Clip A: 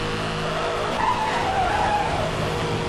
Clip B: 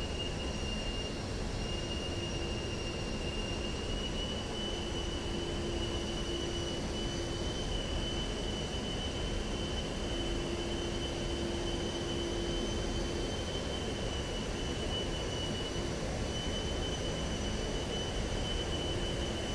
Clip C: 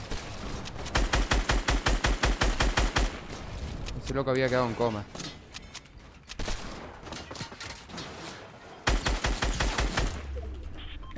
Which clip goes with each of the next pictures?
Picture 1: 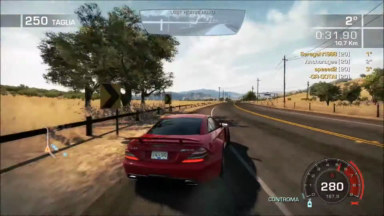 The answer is A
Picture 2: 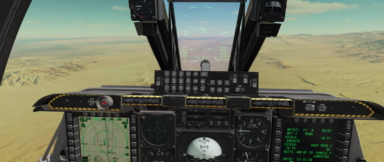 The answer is B